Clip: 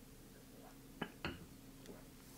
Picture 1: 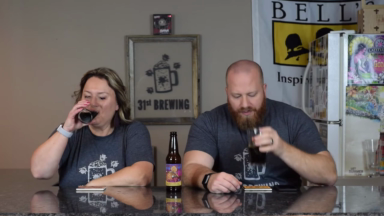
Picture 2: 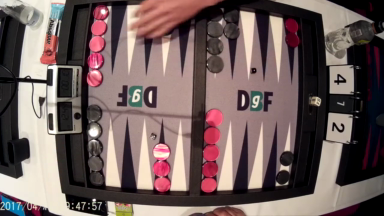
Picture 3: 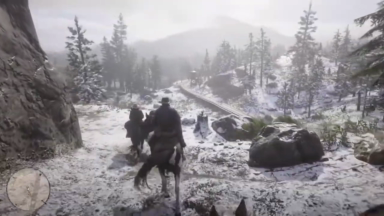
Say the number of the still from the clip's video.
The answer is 1